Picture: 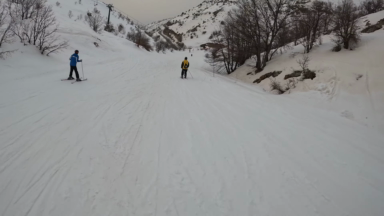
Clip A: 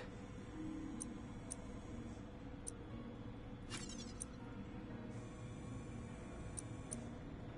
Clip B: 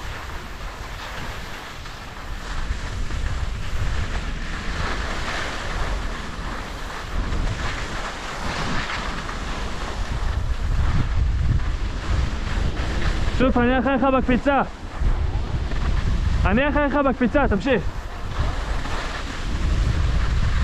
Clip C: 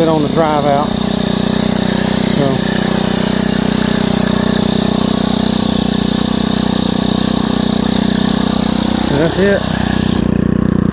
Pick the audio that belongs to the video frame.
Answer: B